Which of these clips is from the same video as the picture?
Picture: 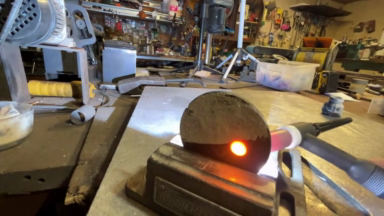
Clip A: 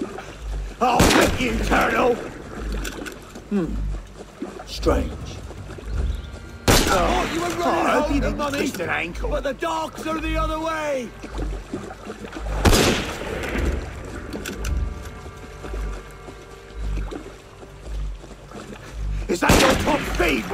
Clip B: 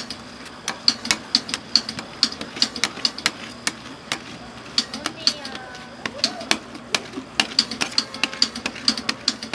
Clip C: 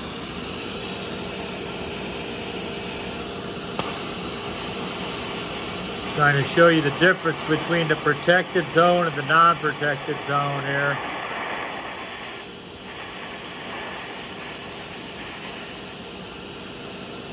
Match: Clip C